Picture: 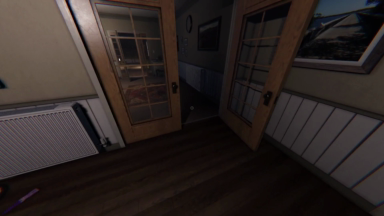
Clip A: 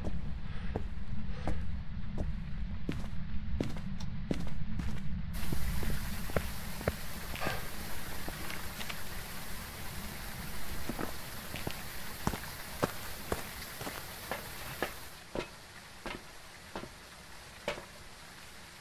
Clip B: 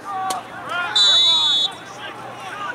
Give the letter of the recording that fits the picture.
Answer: A